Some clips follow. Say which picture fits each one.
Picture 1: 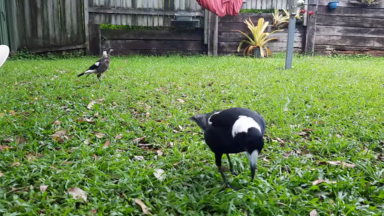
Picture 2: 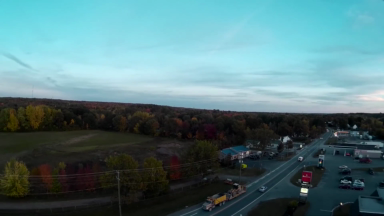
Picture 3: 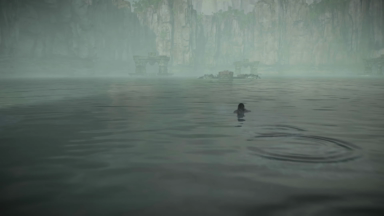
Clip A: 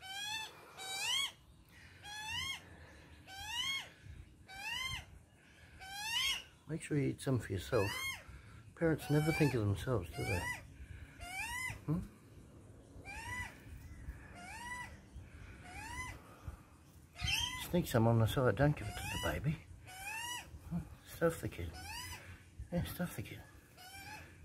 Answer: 1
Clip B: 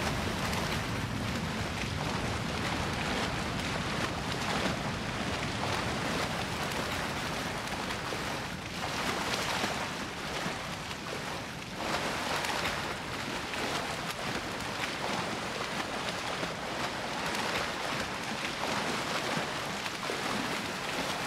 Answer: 3